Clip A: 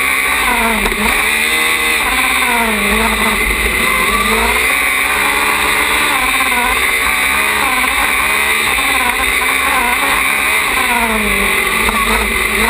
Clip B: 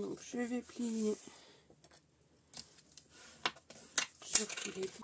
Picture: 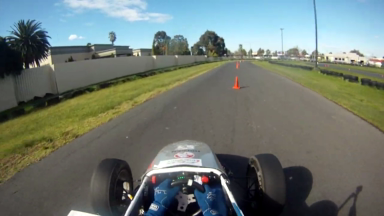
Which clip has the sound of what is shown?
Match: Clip A